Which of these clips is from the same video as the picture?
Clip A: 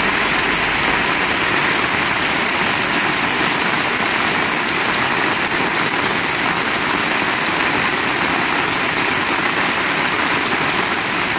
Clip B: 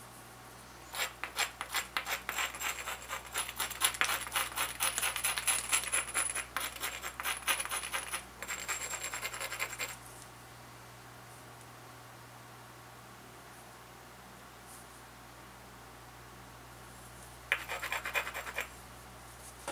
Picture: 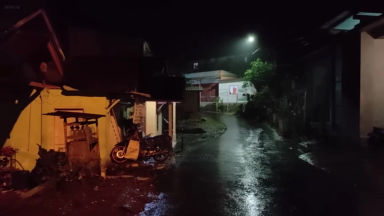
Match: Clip A